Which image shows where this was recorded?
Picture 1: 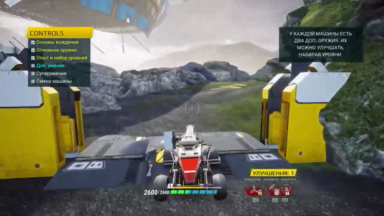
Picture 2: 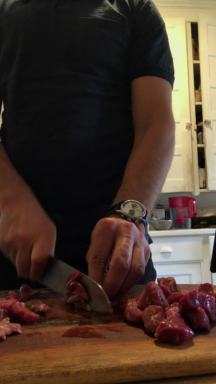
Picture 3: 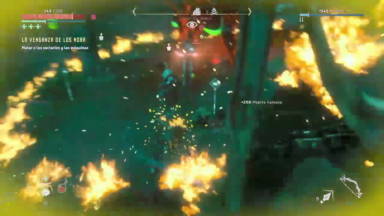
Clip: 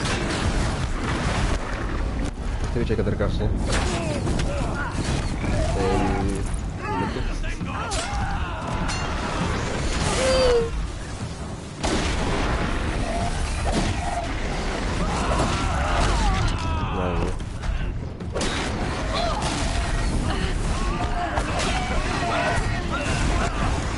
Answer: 3